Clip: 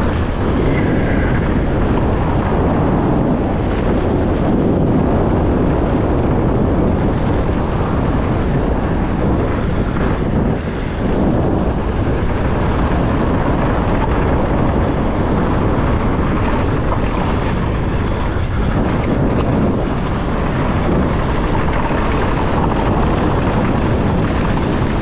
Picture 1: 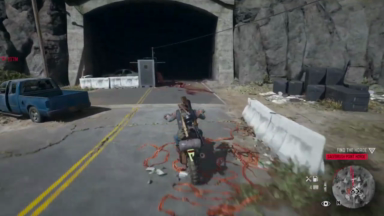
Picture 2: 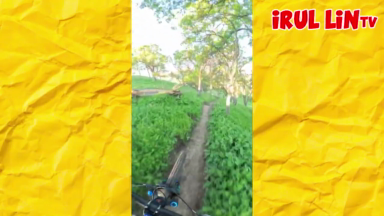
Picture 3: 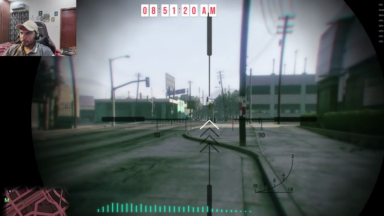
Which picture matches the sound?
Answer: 2